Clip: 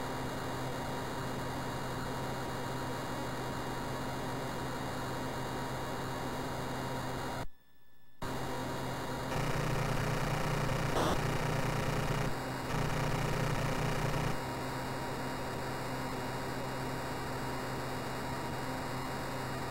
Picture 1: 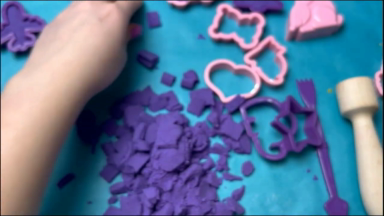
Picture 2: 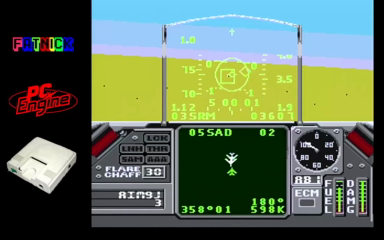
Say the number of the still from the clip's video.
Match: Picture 2